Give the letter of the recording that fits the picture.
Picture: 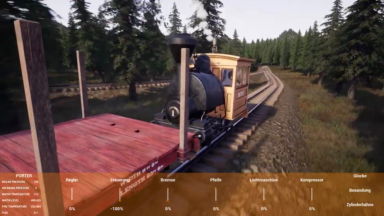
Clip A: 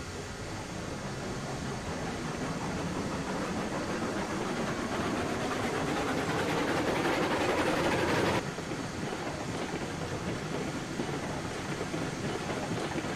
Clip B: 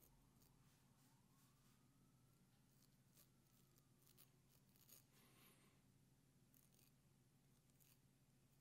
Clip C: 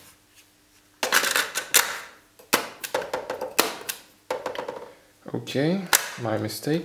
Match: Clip A